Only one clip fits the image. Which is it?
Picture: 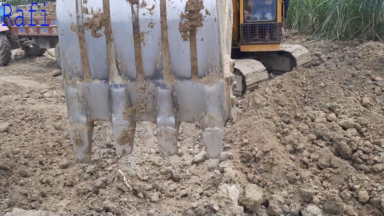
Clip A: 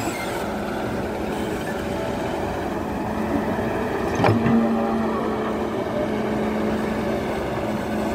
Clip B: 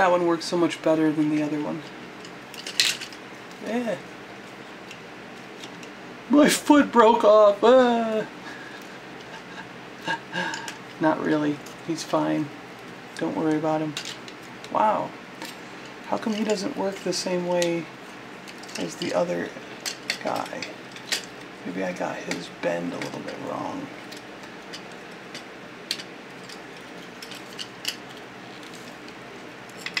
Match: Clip A